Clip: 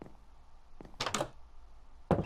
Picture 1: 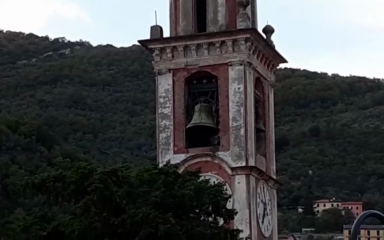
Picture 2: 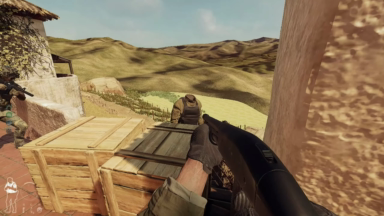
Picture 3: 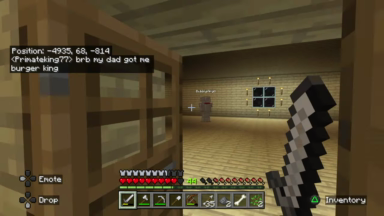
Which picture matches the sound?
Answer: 3